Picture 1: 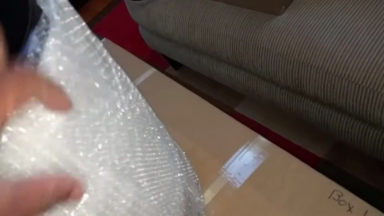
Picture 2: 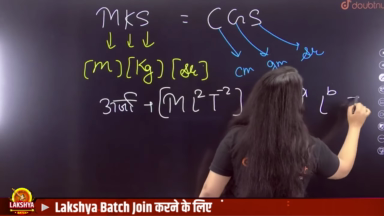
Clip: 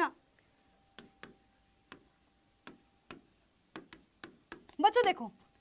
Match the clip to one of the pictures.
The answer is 2